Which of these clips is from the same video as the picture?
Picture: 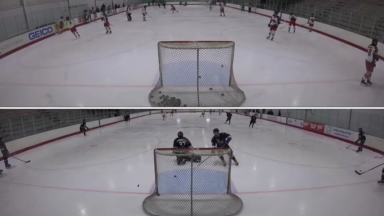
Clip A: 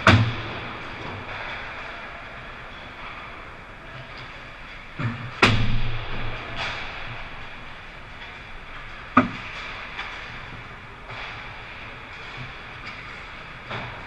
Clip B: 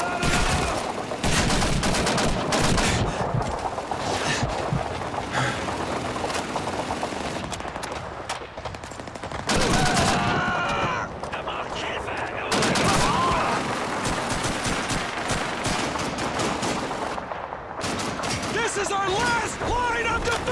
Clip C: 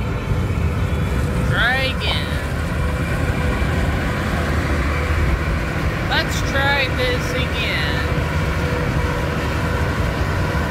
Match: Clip A